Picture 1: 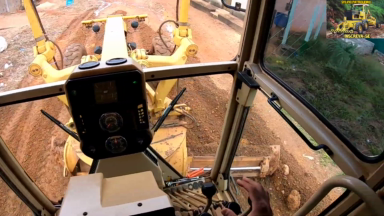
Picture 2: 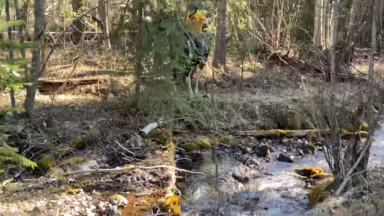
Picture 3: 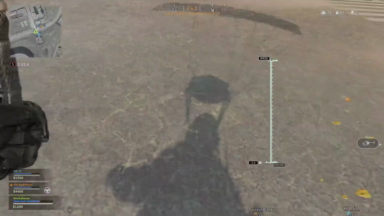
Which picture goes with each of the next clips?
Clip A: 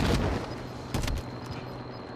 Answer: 3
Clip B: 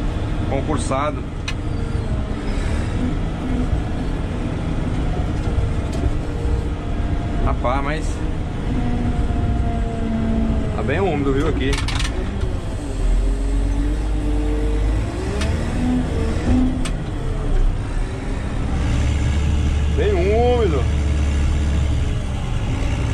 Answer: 1